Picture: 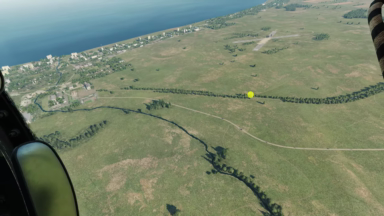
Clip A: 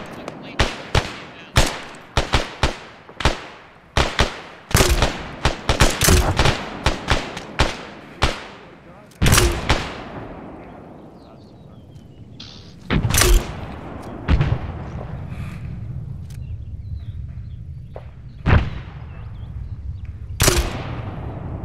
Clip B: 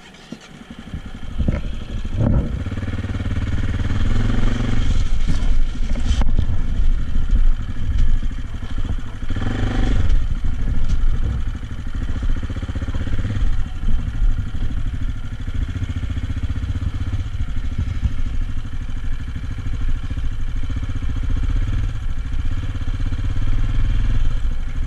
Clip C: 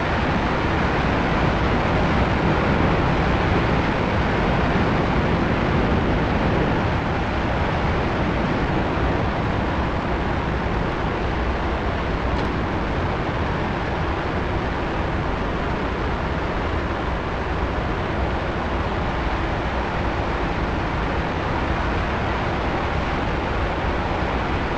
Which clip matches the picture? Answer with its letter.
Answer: C